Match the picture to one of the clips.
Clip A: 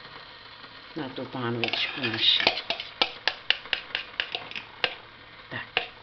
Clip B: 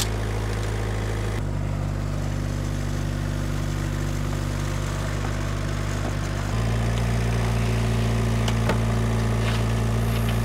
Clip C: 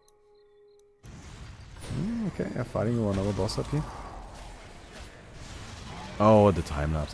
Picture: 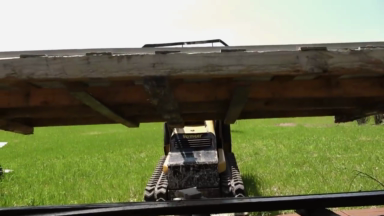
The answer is B